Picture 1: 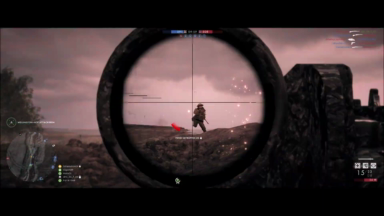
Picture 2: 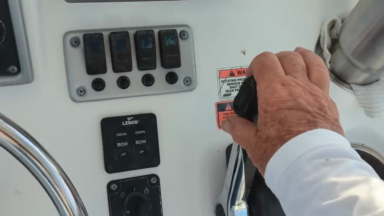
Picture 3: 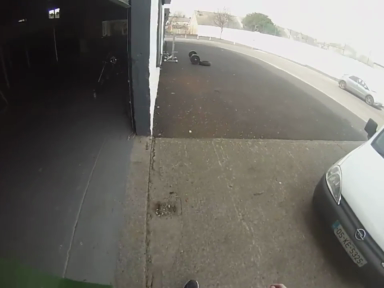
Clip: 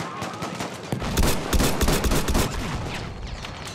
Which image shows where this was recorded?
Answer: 1